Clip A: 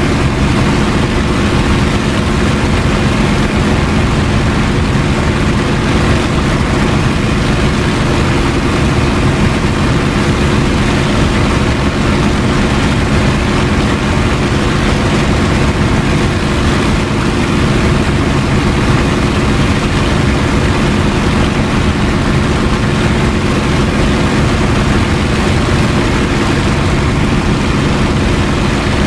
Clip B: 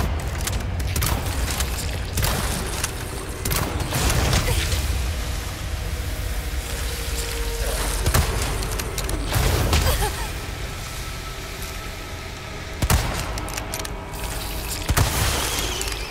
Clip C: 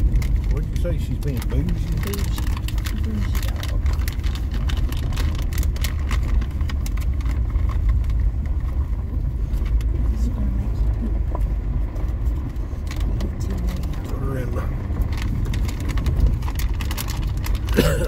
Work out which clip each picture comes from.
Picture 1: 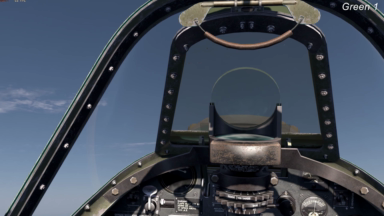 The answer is A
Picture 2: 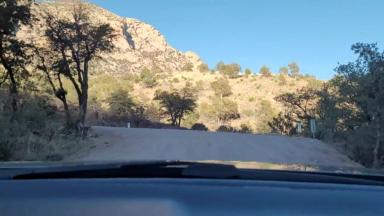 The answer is C